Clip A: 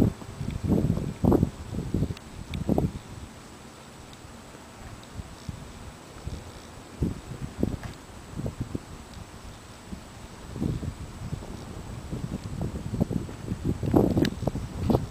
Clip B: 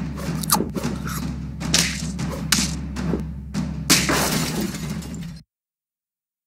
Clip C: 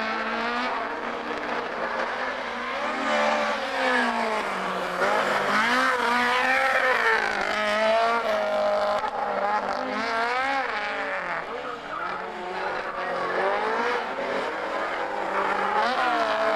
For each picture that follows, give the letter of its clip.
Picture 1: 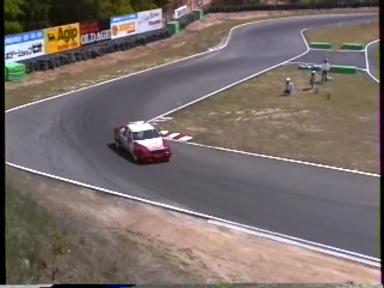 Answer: C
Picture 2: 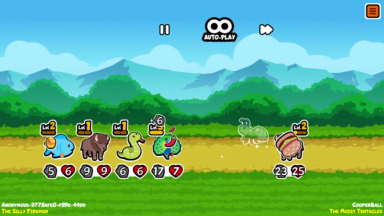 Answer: B